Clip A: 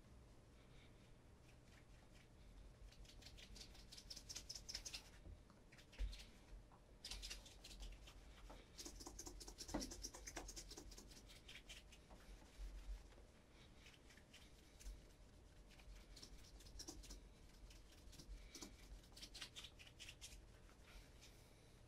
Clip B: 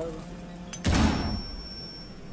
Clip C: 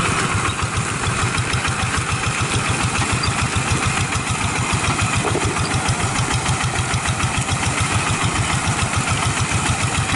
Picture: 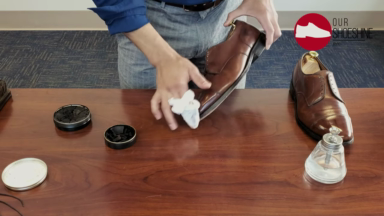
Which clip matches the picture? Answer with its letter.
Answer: A